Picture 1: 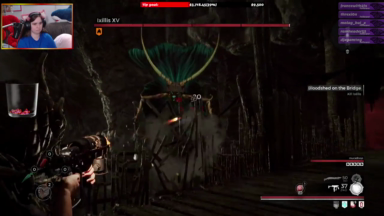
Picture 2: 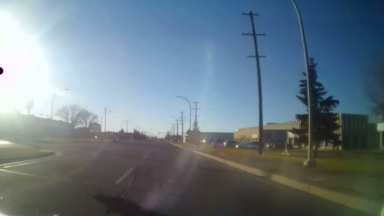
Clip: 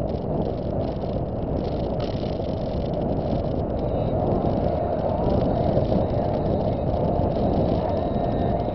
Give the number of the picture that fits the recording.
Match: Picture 2